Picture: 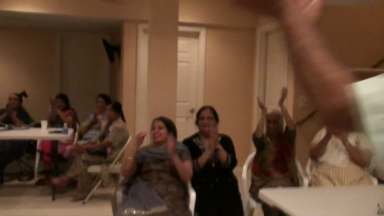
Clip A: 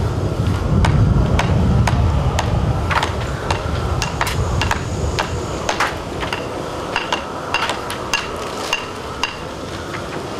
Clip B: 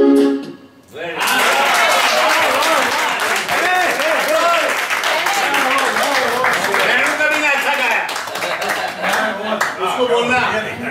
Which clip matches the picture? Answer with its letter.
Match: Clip B